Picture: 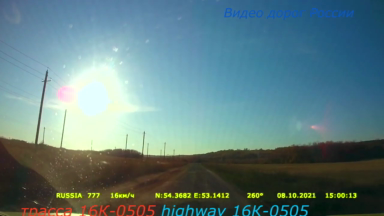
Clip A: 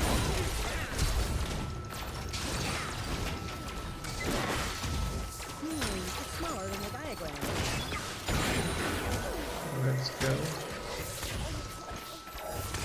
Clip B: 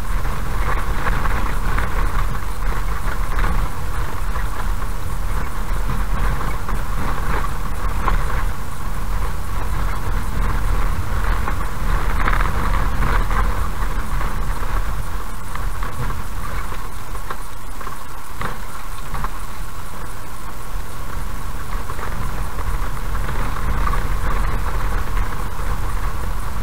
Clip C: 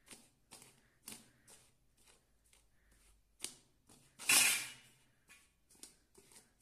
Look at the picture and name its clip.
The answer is B